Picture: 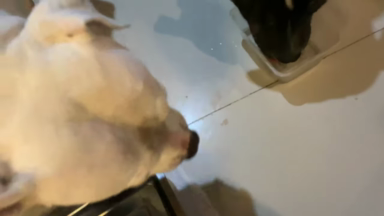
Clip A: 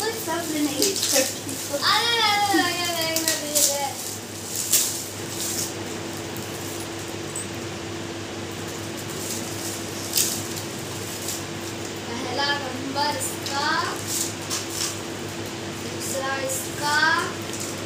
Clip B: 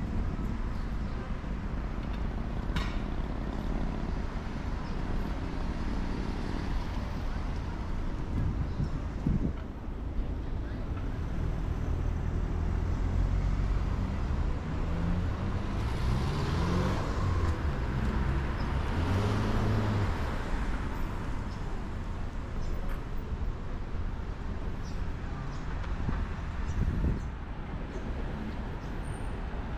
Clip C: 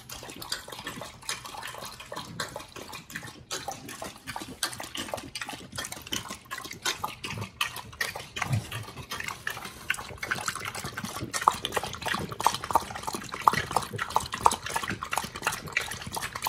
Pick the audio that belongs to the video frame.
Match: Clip C